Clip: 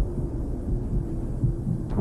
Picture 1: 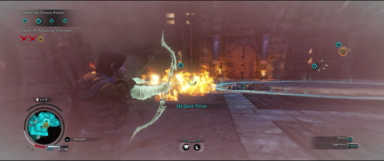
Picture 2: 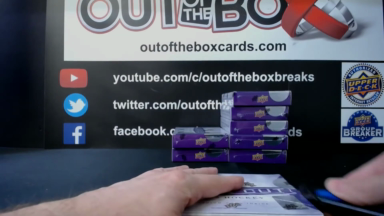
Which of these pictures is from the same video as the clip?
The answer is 1